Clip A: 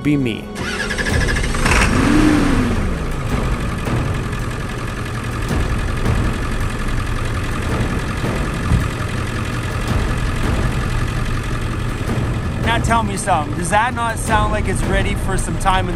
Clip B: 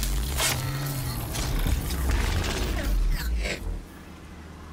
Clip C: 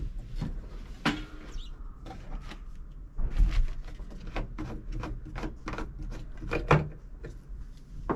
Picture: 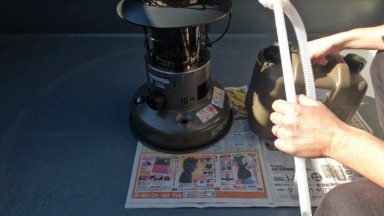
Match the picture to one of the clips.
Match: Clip C